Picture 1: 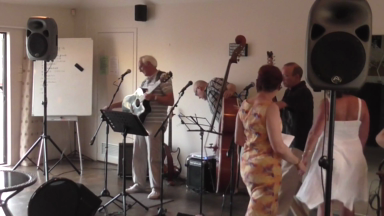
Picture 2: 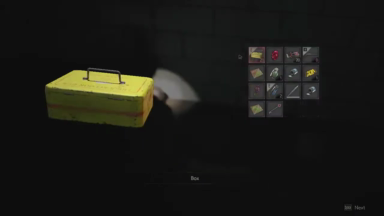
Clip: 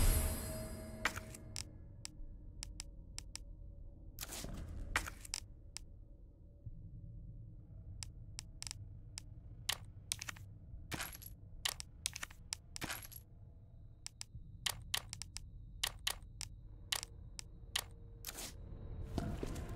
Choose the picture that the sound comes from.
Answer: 2